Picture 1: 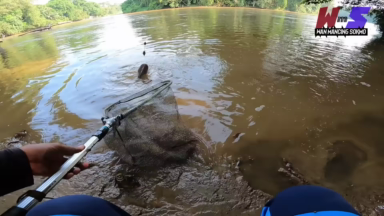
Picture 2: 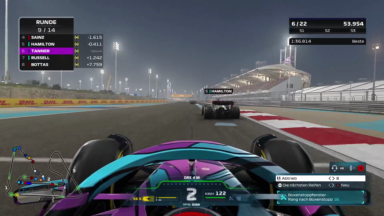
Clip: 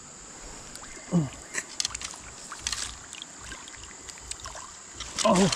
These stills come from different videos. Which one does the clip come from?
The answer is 1